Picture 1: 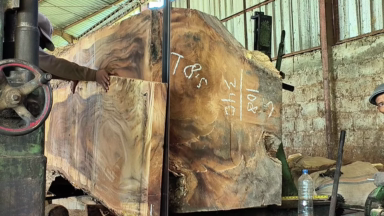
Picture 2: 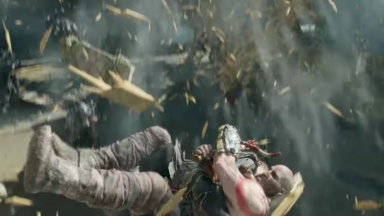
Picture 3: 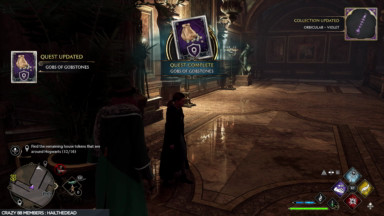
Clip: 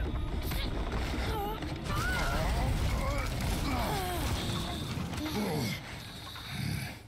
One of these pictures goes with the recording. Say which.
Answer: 2